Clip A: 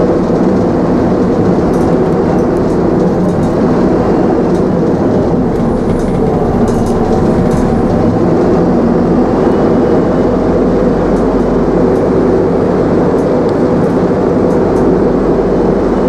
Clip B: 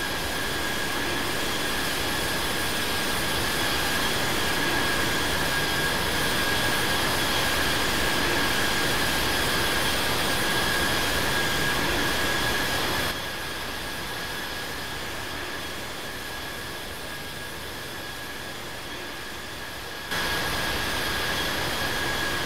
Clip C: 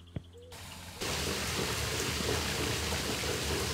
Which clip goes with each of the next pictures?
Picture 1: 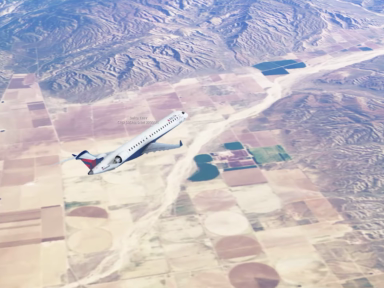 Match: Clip B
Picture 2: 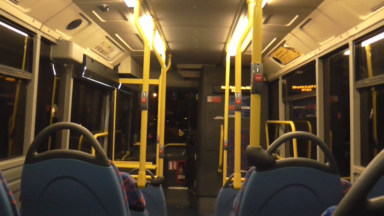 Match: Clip A